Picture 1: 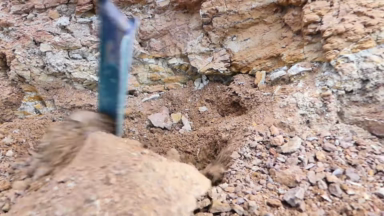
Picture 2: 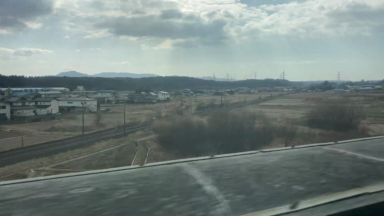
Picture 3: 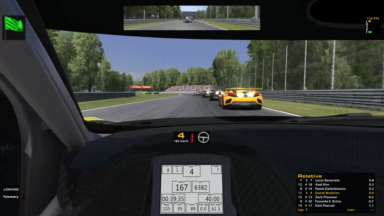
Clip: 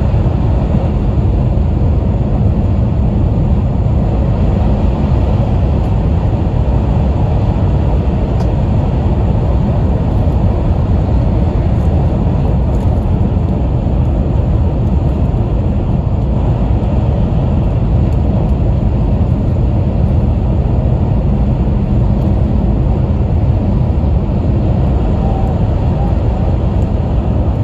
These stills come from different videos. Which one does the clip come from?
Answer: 2